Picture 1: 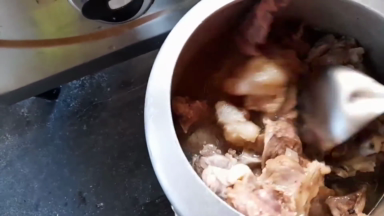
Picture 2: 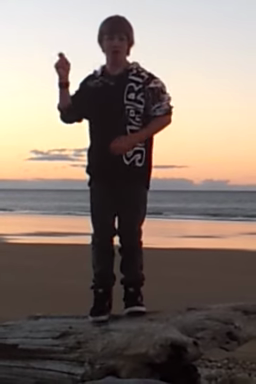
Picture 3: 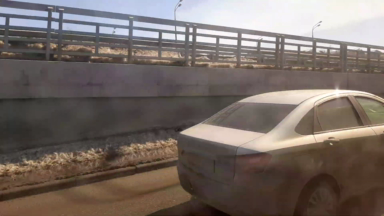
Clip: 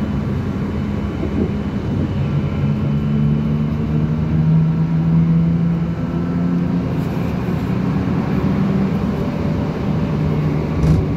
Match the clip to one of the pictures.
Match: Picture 3